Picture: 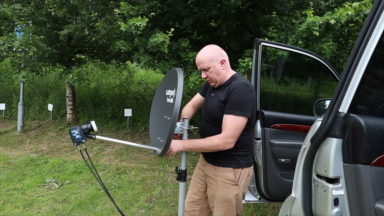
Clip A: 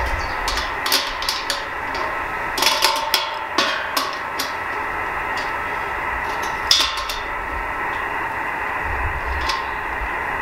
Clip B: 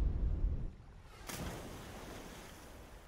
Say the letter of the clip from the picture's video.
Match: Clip A